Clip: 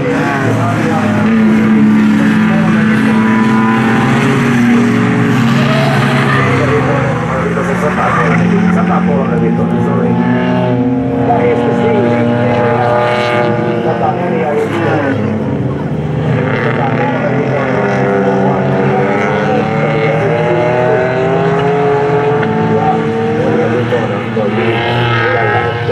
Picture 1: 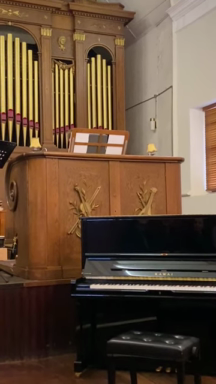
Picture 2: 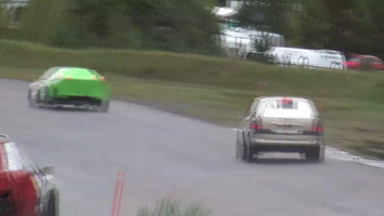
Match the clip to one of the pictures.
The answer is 2